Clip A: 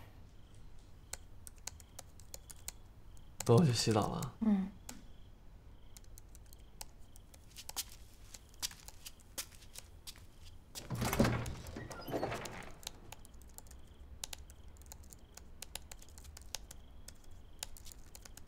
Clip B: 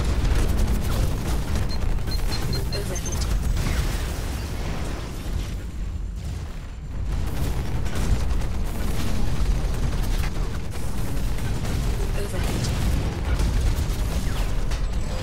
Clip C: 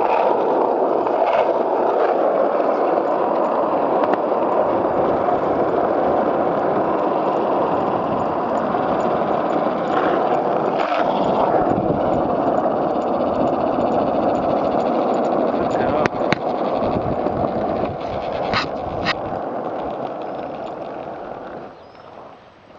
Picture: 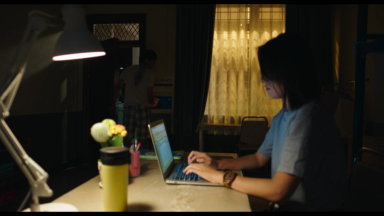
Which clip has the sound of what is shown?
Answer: A